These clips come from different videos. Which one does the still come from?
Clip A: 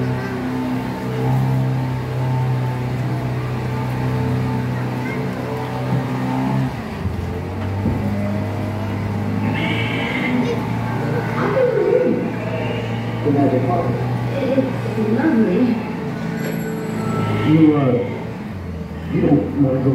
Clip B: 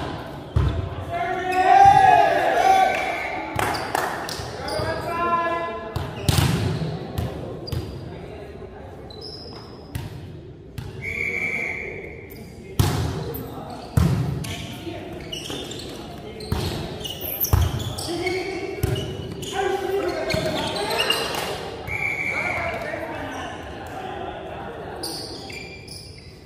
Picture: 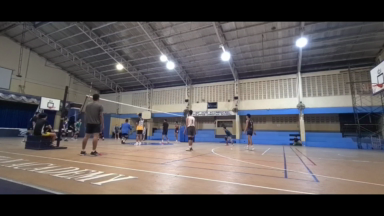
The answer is B